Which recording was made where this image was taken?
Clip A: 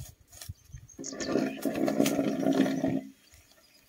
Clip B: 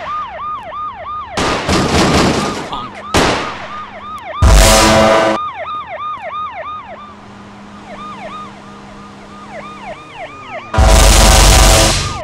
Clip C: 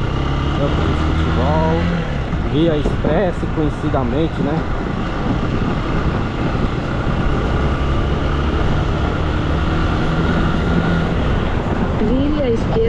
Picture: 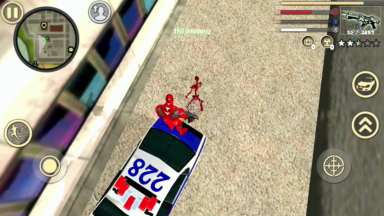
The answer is B